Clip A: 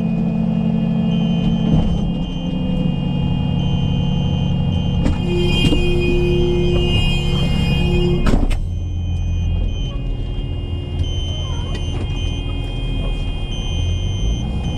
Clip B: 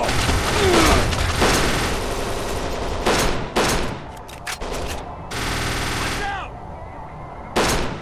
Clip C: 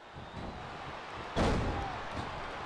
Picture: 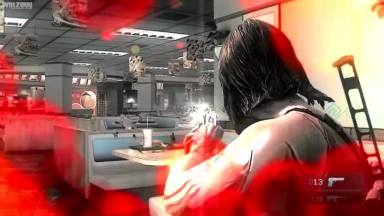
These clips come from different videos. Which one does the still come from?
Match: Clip B